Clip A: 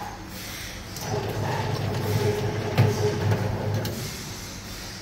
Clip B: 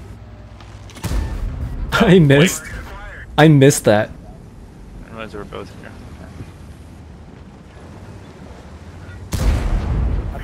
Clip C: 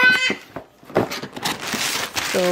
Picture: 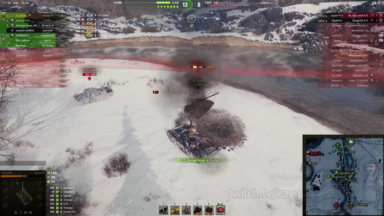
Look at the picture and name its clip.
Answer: B